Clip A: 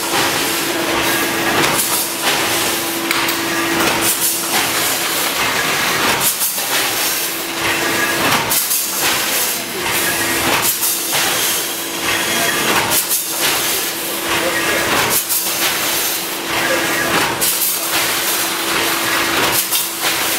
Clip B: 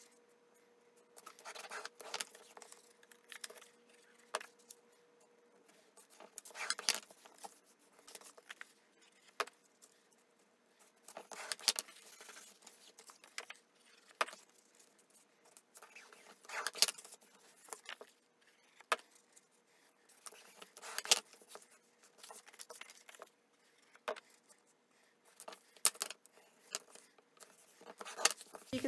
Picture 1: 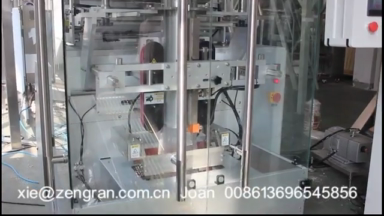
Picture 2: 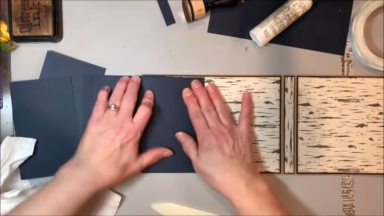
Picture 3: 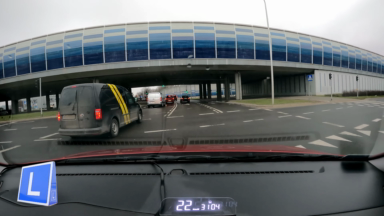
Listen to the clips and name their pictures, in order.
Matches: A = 1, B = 2